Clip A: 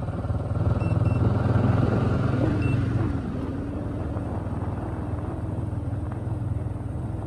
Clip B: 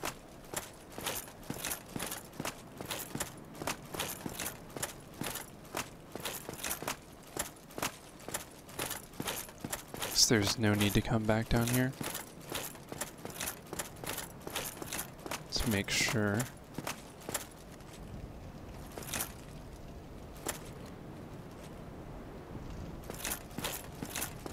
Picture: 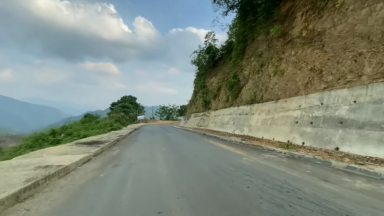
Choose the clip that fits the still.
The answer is A